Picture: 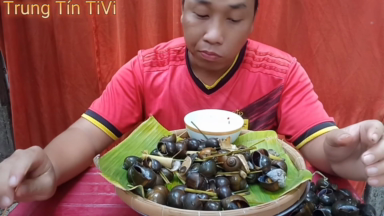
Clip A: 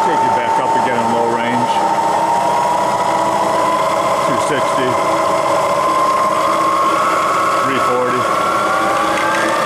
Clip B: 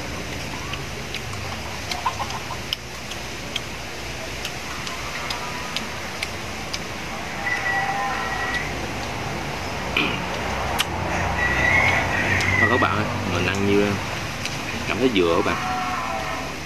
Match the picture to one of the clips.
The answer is B